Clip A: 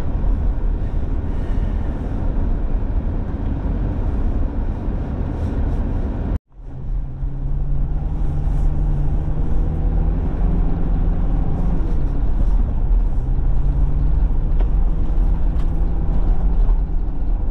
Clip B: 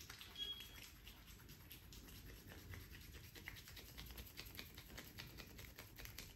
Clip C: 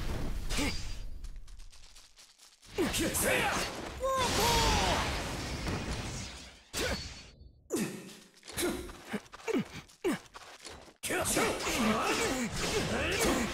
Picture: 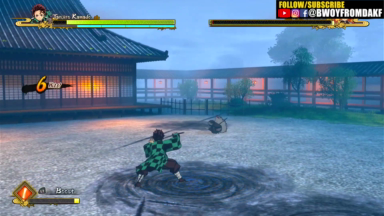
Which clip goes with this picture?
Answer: C